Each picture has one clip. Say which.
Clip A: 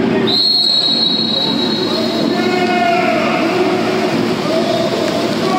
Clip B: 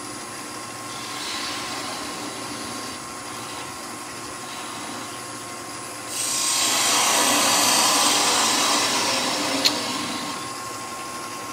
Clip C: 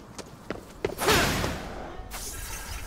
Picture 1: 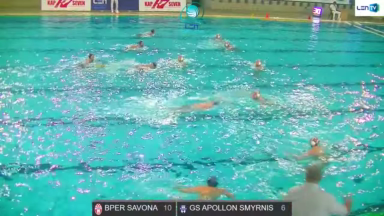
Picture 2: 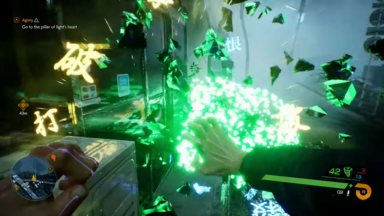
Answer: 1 A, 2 C